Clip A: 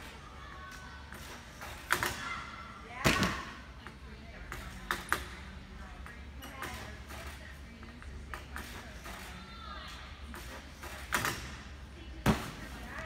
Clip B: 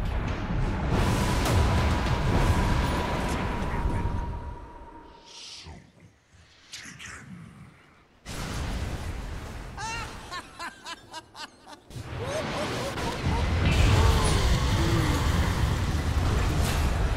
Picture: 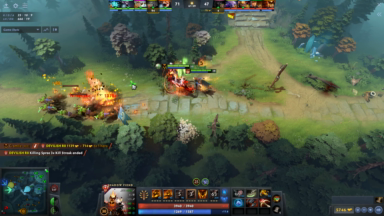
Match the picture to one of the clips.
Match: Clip B